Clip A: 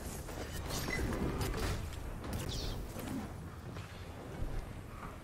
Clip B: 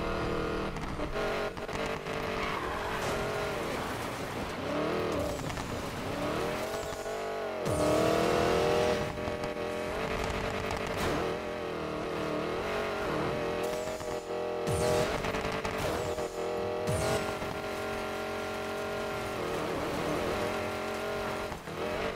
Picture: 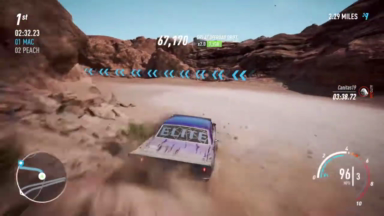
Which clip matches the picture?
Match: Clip B